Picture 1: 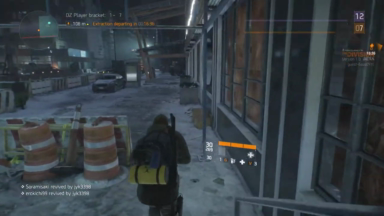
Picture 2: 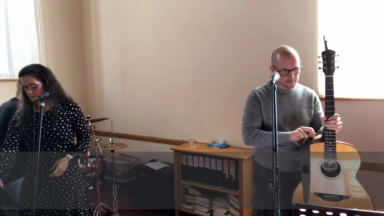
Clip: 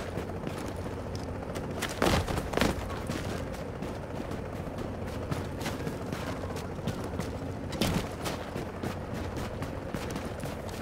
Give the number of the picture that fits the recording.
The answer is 1